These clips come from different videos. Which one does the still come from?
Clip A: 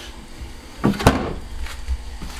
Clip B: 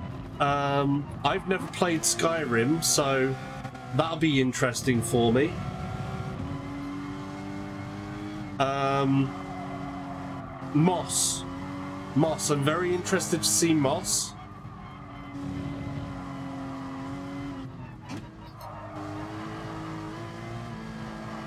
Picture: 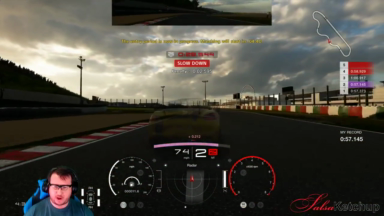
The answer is B